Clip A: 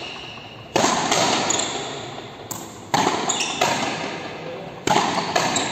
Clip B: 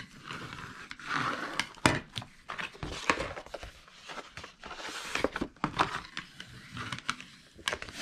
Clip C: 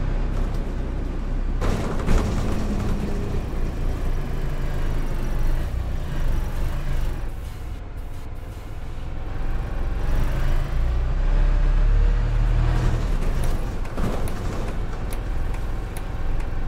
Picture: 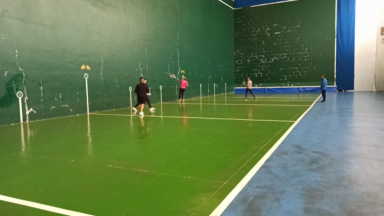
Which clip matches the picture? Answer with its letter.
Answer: A